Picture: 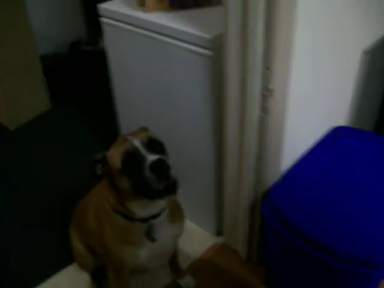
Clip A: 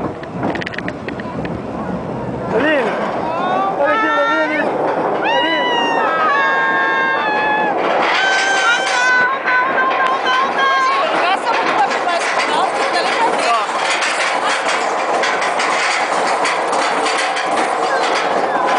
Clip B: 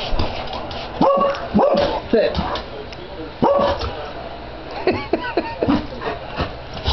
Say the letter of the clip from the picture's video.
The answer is B